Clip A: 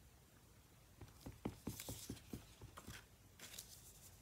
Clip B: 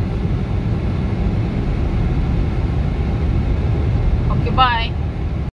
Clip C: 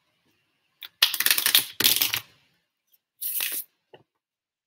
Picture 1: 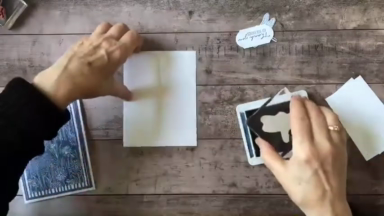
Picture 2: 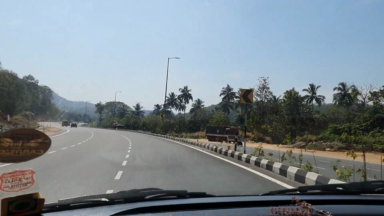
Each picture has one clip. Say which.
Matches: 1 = A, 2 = B